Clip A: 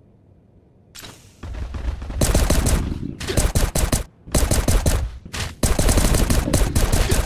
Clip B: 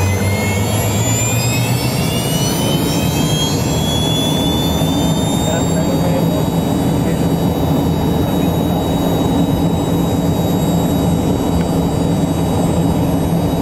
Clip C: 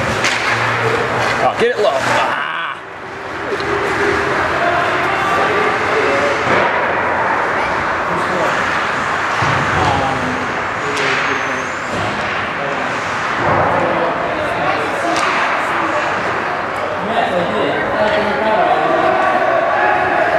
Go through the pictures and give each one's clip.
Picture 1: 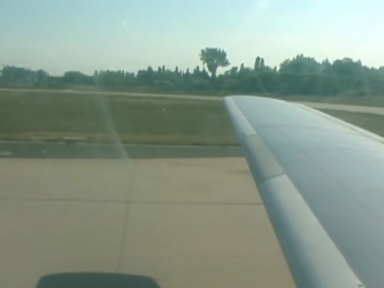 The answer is B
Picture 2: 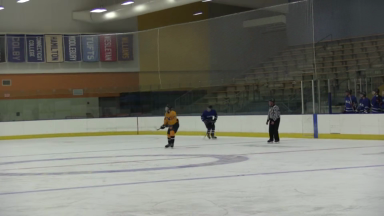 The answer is C